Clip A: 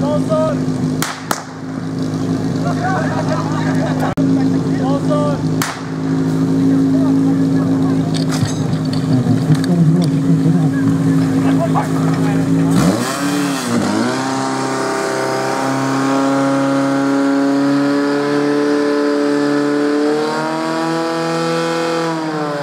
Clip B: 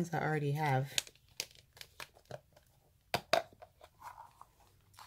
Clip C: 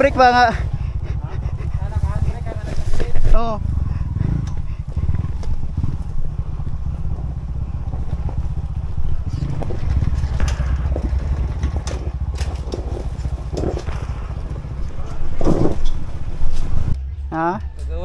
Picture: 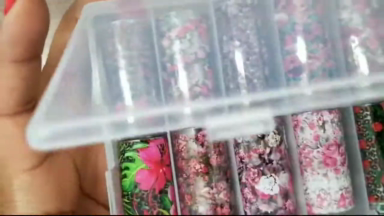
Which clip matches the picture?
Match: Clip B